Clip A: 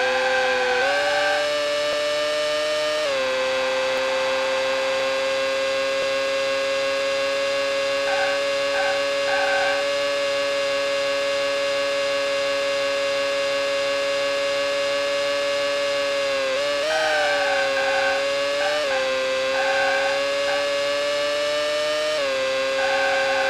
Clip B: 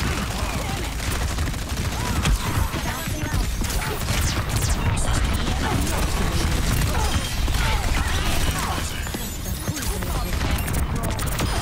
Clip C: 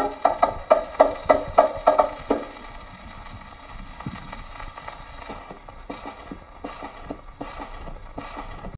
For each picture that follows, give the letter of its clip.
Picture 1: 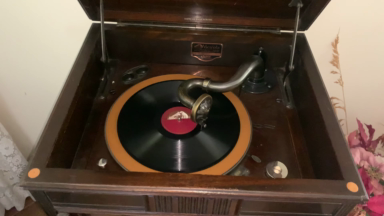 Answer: C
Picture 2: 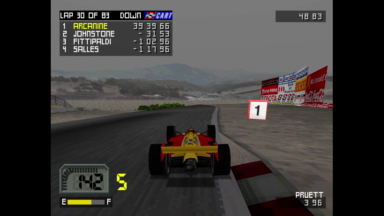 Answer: A